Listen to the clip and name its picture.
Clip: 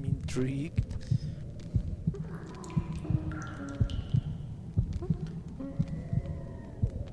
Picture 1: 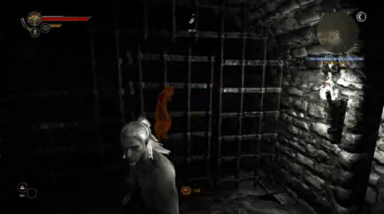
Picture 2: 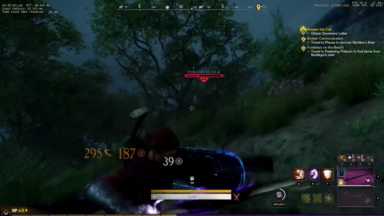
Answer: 1